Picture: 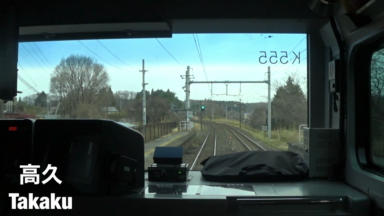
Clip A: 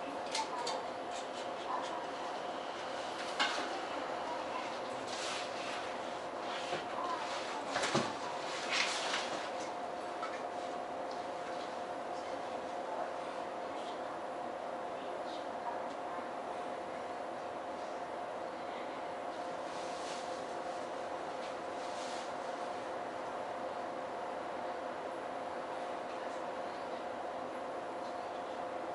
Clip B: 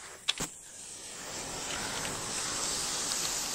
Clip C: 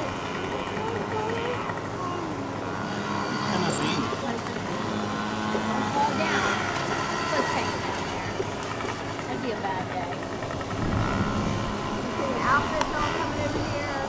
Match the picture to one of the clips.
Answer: A